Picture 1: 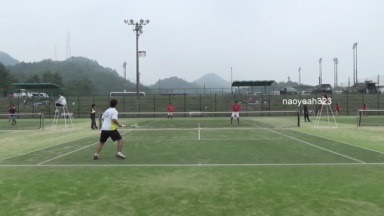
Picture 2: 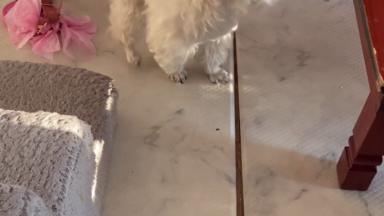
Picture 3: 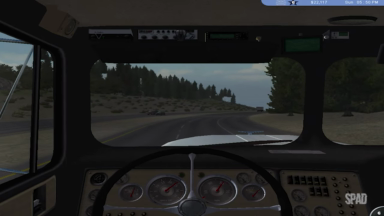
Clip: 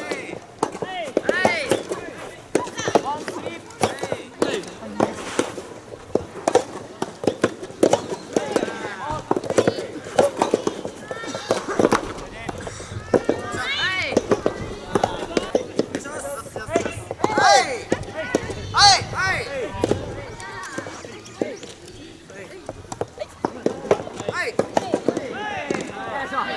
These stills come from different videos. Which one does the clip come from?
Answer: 1